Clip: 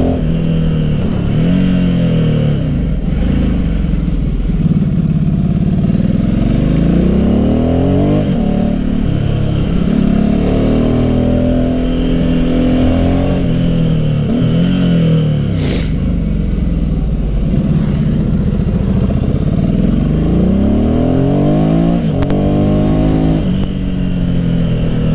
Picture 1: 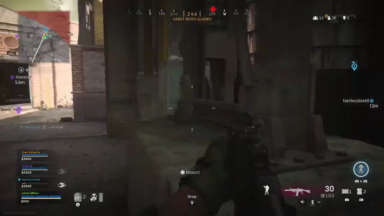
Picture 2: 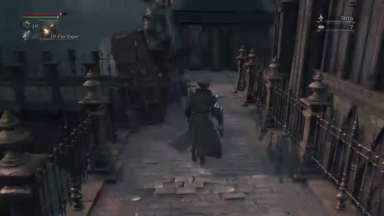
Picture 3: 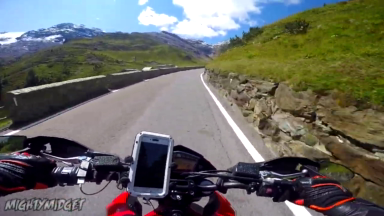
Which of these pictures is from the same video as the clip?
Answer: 3